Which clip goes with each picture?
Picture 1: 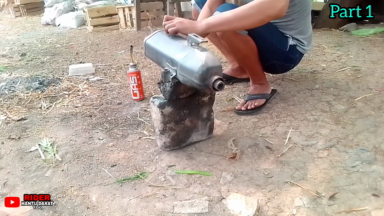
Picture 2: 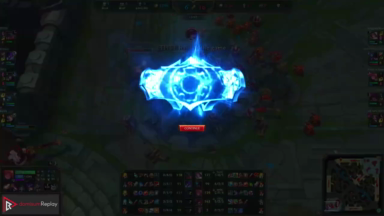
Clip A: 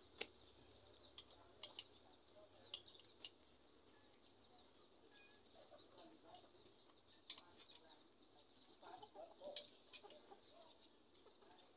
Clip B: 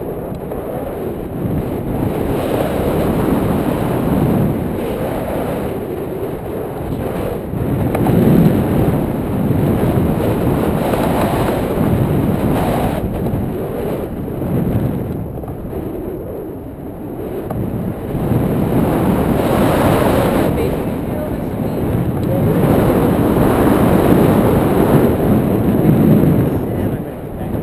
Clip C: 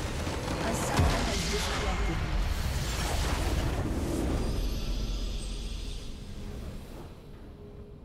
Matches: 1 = A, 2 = C